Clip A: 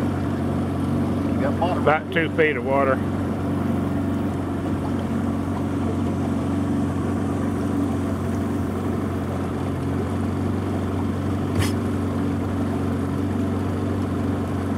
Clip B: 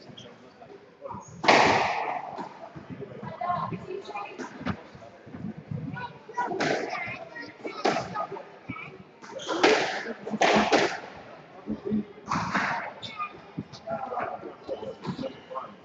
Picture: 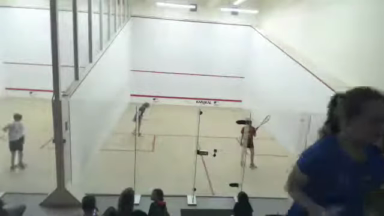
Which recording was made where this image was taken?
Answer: B